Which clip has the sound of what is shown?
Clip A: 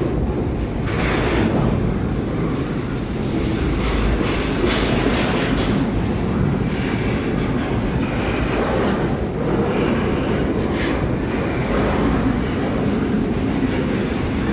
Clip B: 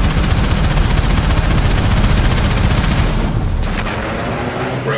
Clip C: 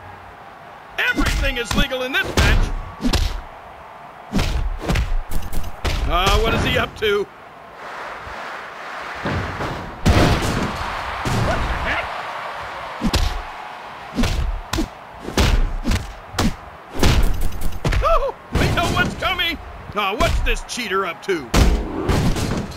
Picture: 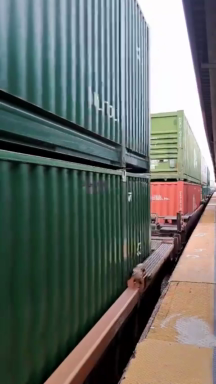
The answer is A